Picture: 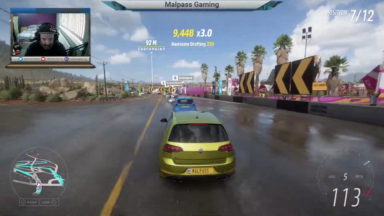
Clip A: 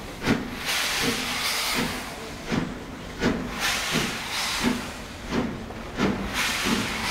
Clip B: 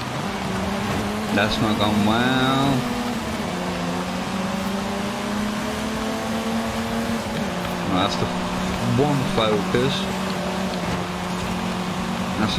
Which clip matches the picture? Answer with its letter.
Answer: B